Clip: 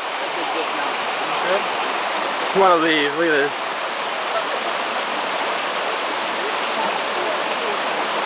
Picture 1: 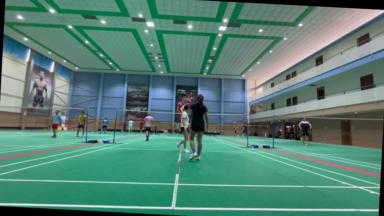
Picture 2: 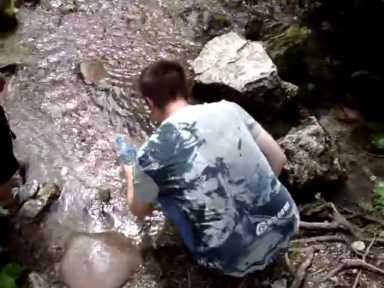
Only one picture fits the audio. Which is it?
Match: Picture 2